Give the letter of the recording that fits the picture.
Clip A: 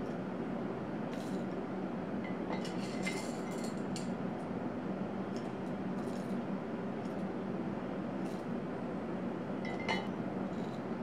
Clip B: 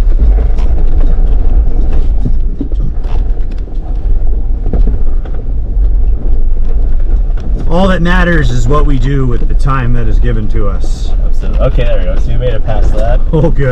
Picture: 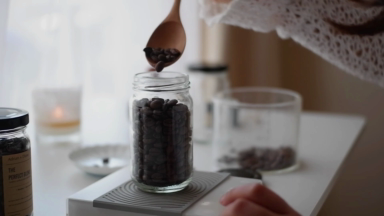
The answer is A